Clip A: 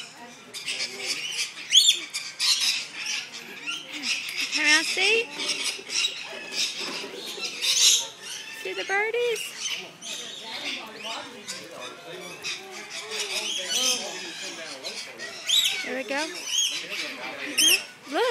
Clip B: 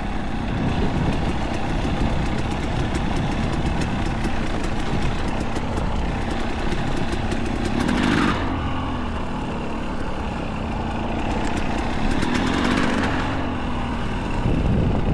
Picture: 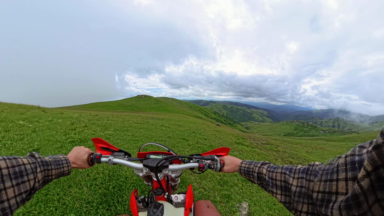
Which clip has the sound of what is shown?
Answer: B